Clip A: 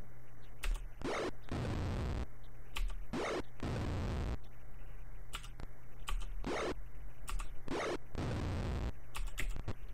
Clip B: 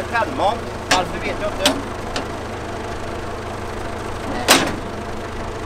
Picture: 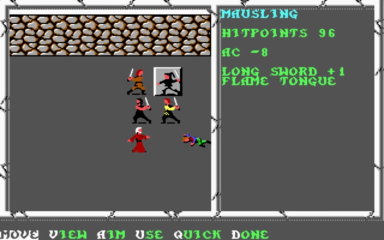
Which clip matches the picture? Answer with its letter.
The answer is A